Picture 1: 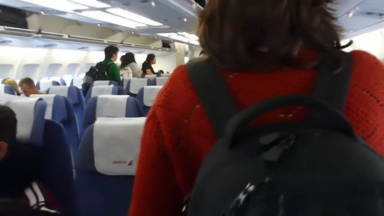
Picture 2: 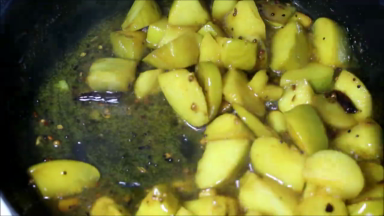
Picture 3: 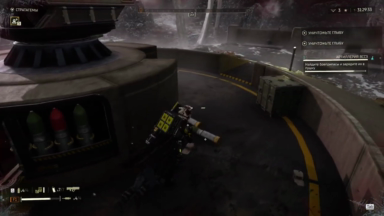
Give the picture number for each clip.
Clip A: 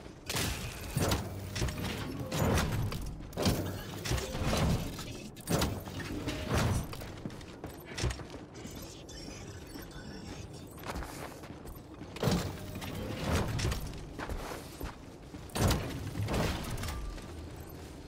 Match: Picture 3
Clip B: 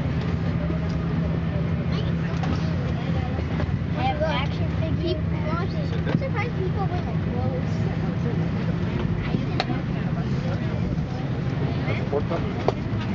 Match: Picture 1